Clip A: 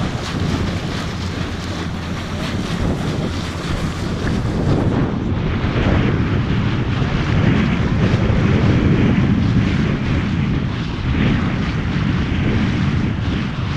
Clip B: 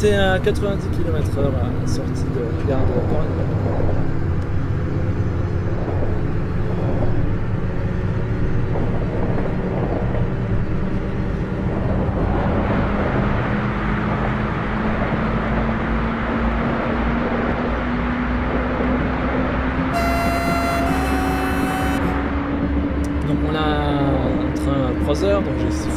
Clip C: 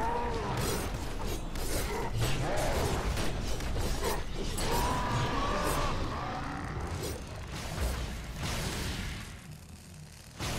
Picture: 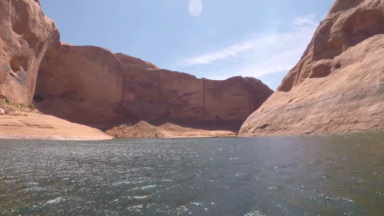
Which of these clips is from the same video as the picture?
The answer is A